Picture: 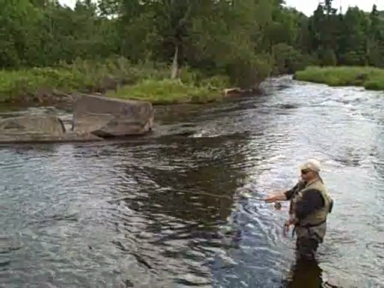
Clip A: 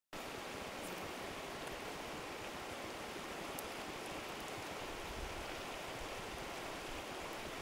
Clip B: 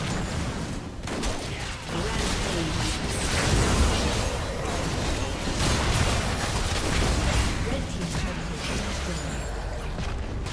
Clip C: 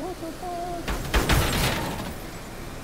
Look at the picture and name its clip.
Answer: A